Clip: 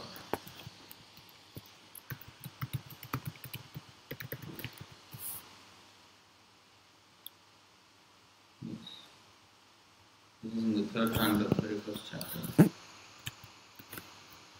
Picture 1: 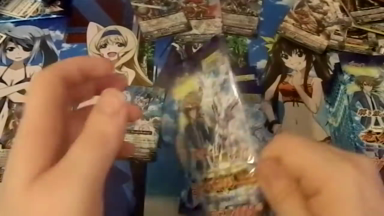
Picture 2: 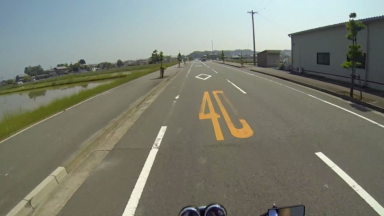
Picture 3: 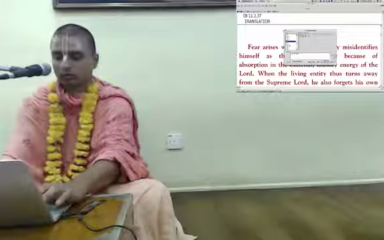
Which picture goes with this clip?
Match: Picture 3